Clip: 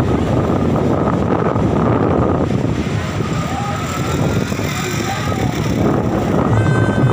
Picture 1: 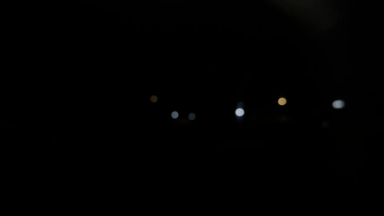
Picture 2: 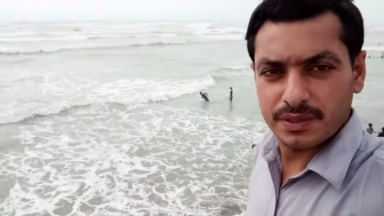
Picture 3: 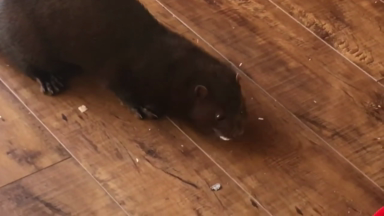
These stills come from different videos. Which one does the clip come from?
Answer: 2